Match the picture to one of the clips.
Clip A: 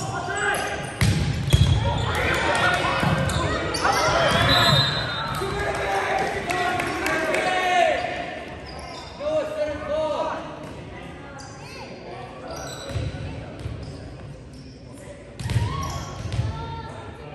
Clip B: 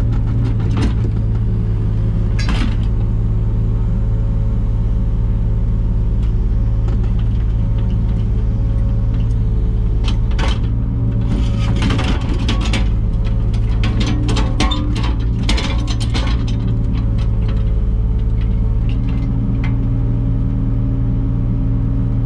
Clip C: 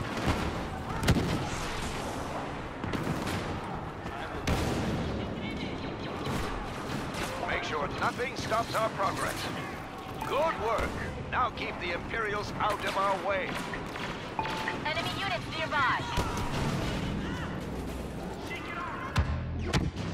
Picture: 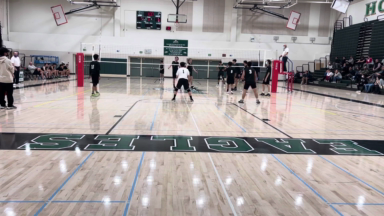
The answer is A